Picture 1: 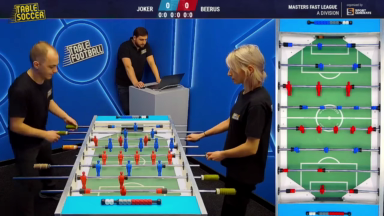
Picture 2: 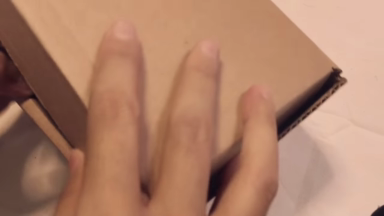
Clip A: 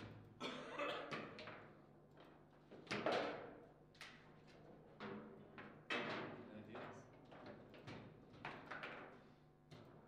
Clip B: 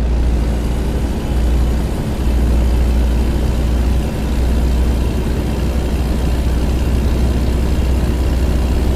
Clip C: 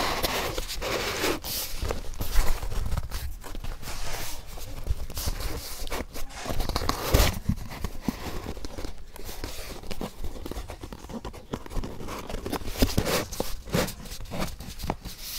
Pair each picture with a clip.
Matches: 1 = A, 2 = C